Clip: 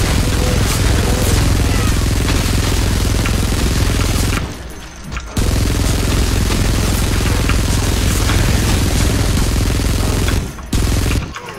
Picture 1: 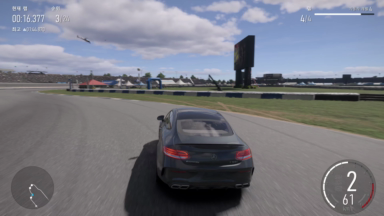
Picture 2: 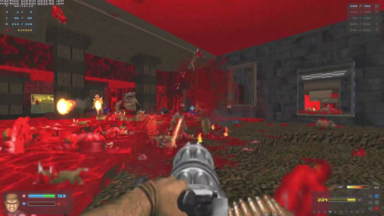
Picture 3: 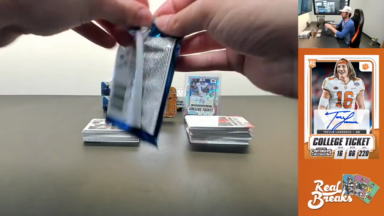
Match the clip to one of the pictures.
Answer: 2